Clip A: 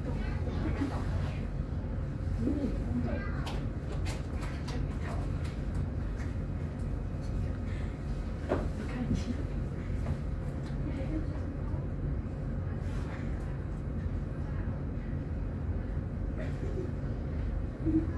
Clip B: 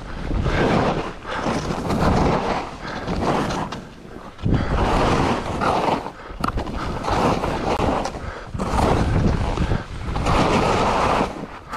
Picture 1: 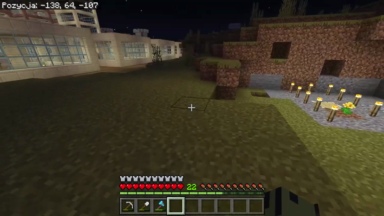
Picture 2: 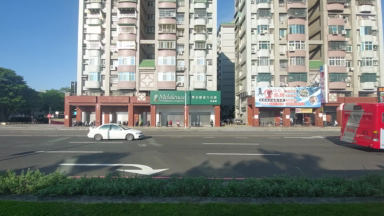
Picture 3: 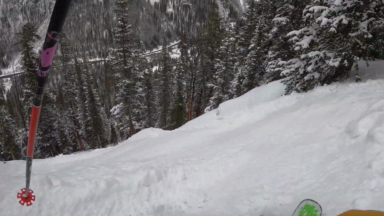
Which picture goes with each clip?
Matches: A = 2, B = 3